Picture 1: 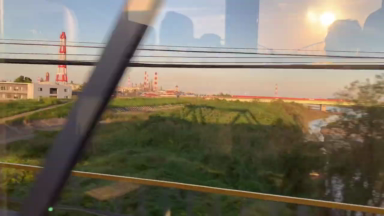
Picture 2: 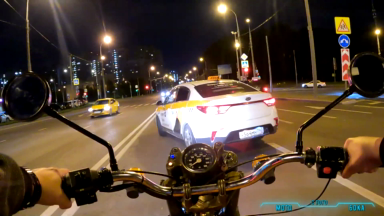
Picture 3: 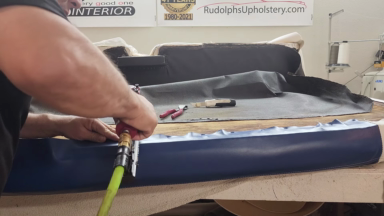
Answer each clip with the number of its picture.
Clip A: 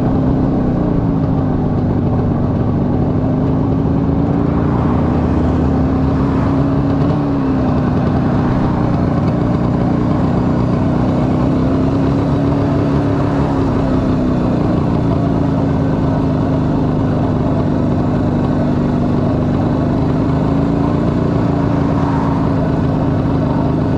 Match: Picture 2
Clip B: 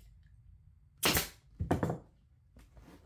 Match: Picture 3